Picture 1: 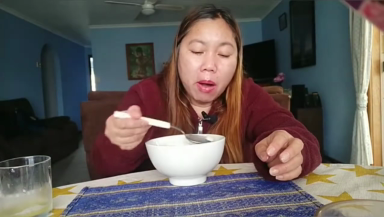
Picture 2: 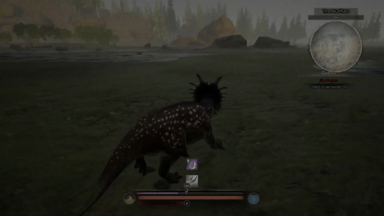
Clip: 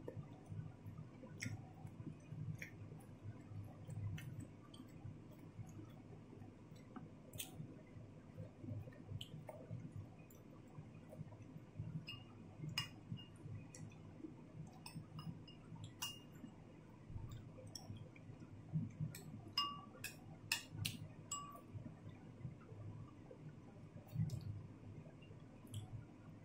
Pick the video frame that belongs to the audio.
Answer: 1